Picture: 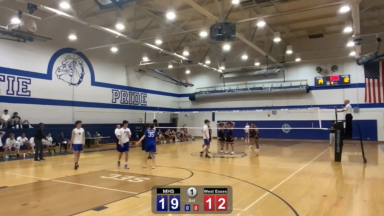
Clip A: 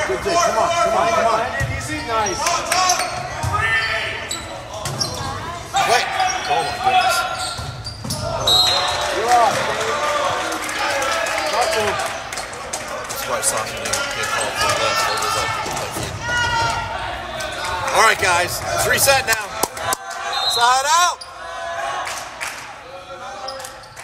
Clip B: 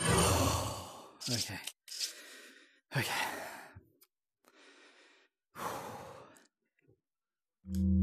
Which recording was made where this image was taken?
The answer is A